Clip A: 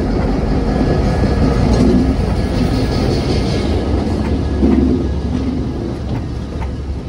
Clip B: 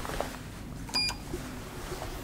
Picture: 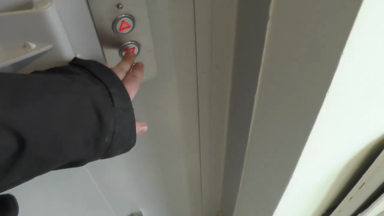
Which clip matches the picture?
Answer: B